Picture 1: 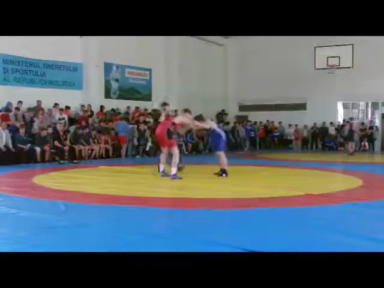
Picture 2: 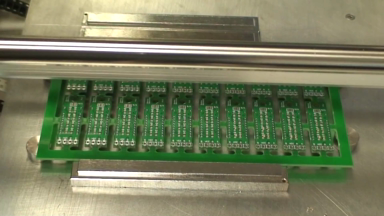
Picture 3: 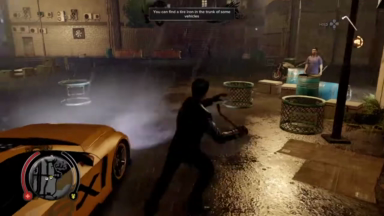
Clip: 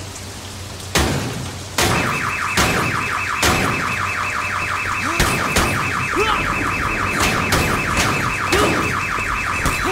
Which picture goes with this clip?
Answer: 3